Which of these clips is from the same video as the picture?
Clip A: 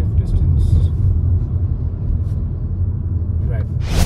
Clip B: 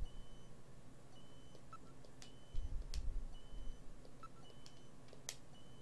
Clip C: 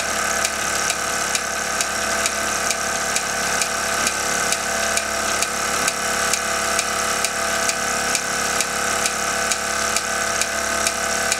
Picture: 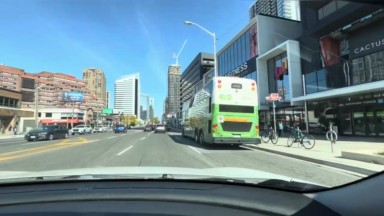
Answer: A